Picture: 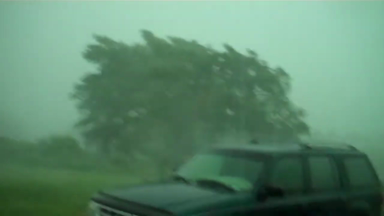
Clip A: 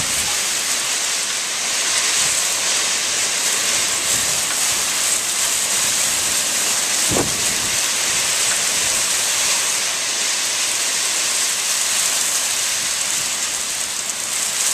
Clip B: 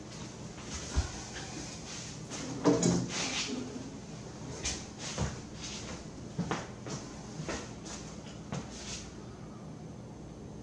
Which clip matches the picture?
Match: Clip A